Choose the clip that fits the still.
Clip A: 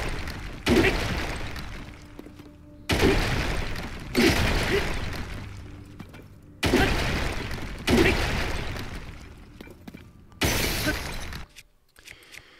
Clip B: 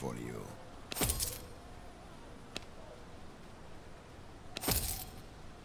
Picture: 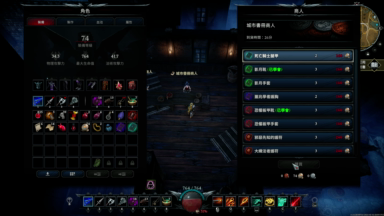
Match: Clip B